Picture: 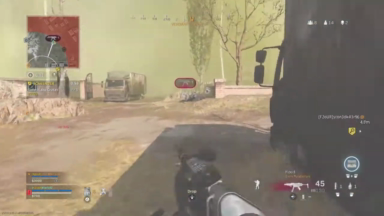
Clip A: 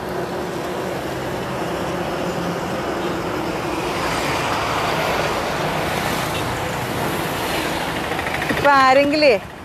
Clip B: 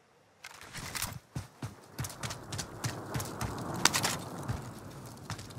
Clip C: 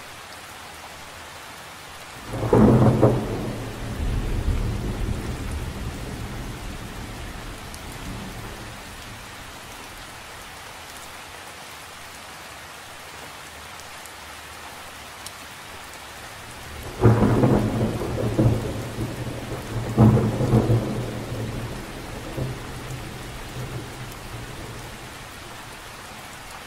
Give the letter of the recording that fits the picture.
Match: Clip B